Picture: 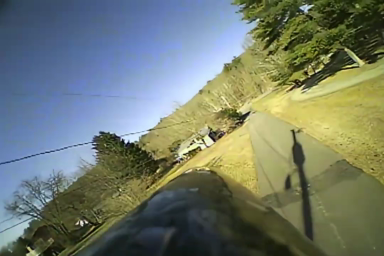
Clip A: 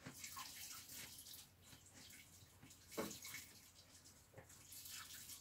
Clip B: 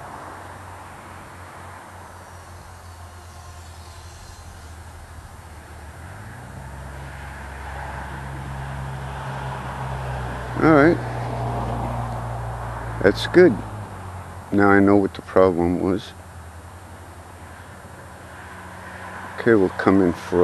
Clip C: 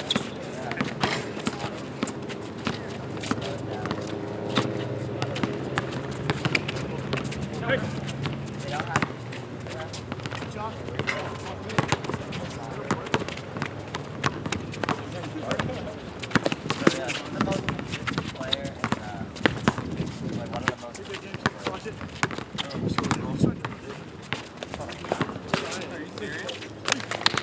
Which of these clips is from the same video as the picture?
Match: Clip B